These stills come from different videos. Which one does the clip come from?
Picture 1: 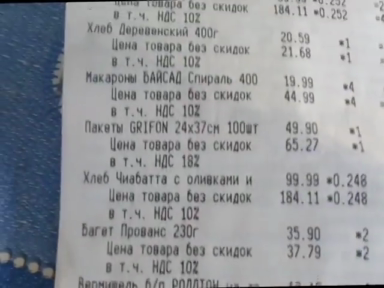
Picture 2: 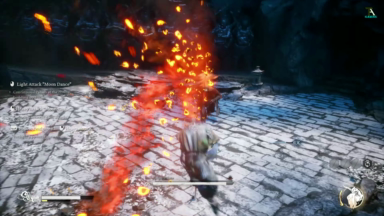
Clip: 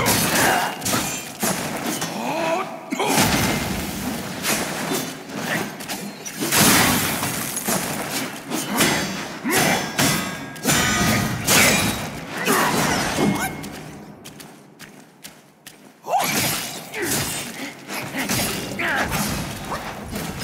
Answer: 2